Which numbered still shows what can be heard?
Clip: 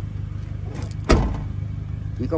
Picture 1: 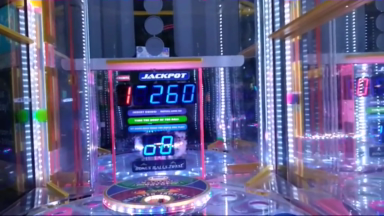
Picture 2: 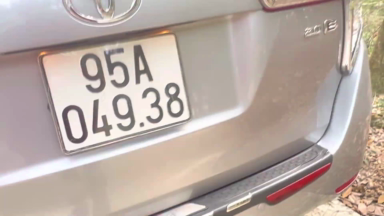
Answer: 2